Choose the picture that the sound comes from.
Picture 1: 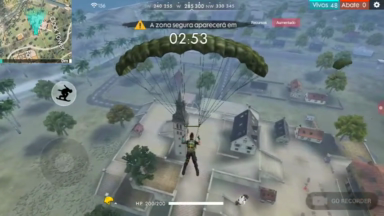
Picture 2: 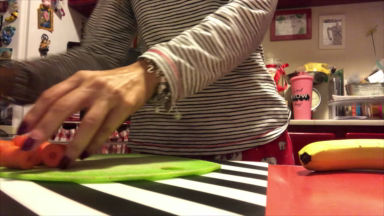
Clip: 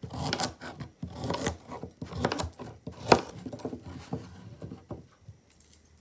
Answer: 2